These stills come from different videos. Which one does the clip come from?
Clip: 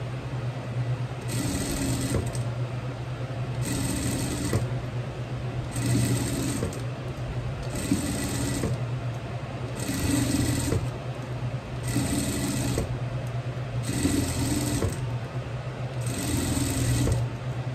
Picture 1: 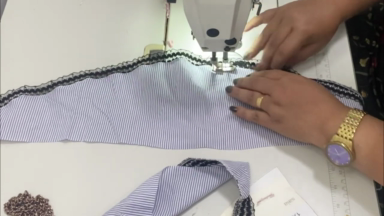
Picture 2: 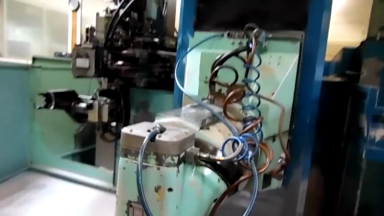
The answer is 1